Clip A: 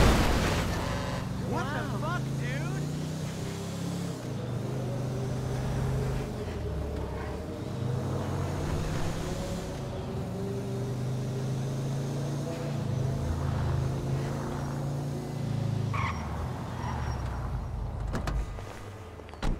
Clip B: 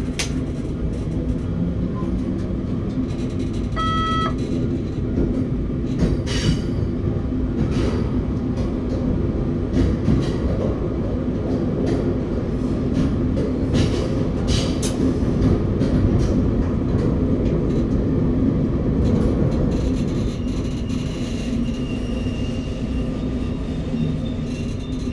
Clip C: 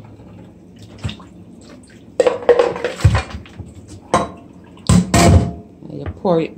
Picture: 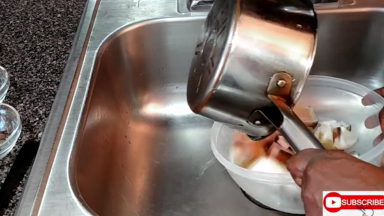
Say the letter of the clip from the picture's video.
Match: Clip C